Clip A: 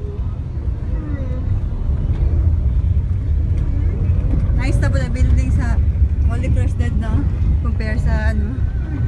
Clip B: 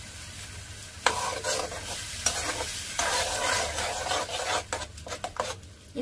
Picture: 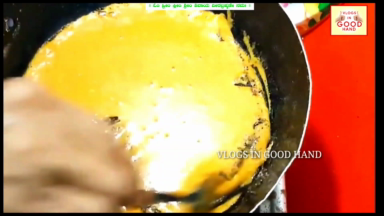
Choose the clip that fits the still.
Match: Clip B